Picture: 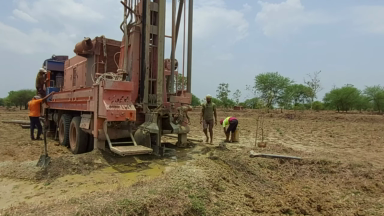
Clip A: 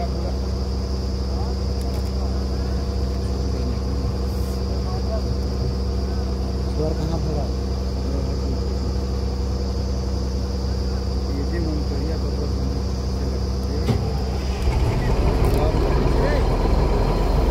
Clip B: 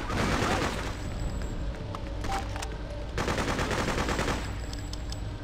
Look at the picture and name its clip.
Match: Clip A